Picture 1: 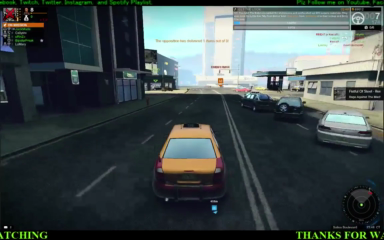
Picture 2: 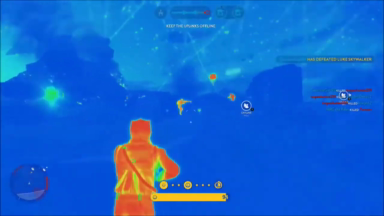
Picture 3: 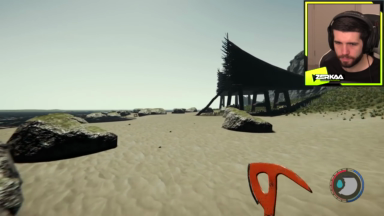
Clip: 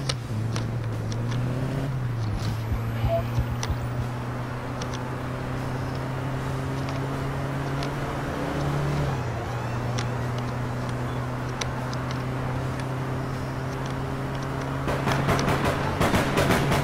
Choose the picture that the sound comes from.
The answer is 1